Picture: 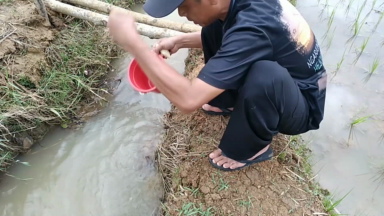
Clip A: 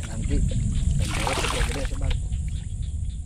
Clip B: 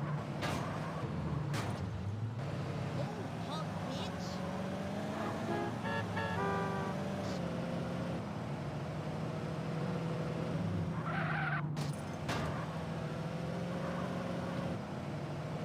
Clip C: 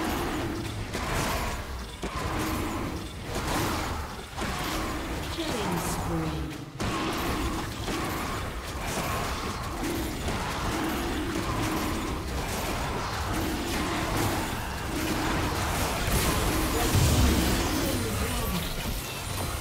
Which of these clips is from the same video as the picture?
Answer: A